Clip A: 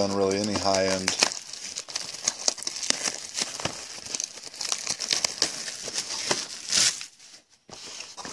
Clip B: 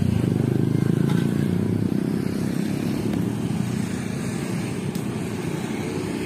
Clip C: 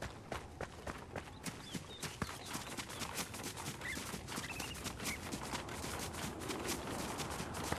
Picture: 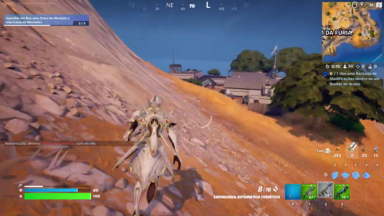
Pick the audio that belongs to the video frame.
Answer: C